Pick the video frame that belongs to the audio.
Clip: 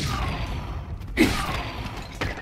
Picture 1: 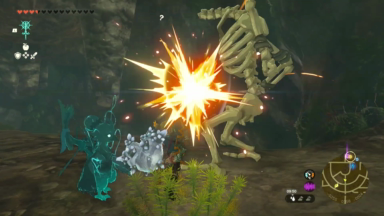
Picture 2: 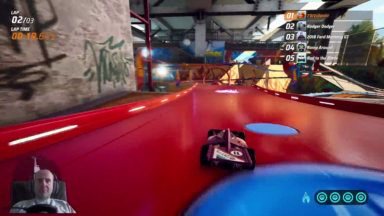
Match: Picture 1